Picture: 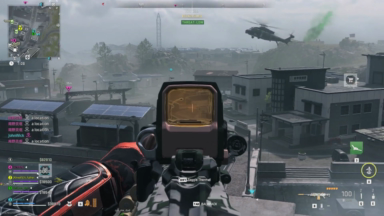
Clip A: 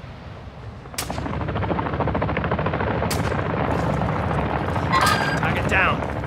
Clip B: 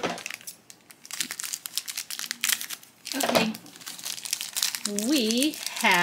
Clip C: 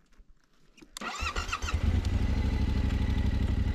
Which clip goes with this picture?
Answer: A